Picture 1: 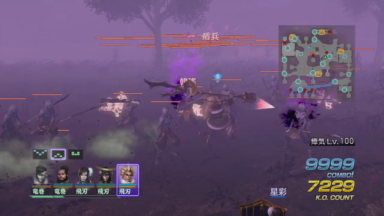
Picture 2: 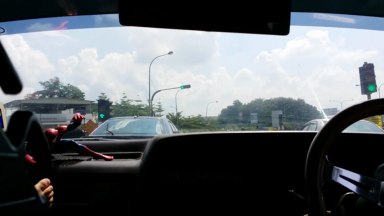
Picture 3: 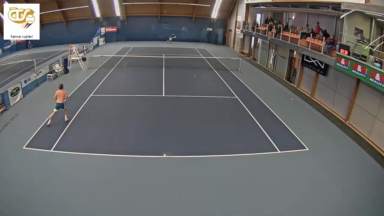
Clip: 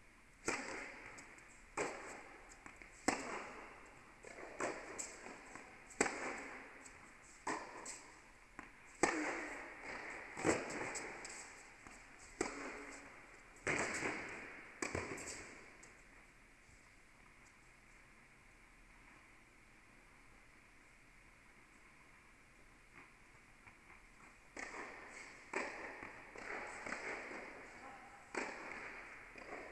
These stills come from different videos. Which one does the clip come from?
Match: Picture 3